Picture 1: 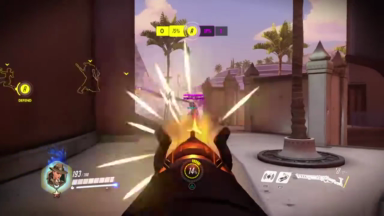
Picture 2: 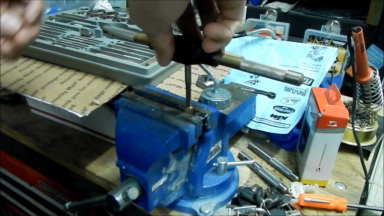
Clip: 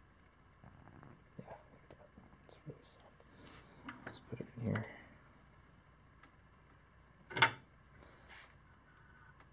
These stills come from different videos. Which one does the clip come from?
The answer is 2